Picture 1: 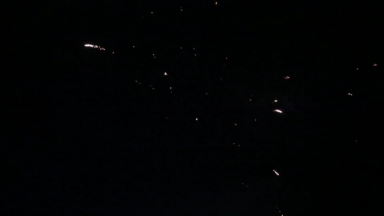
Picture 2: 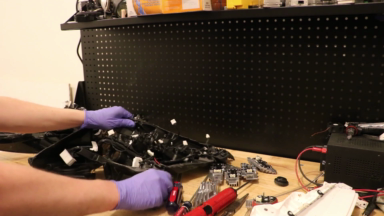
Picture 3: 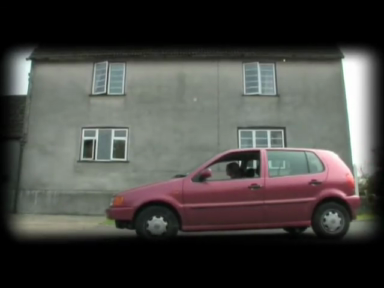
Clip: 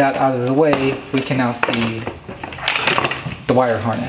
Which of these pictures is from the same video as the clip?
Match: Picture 2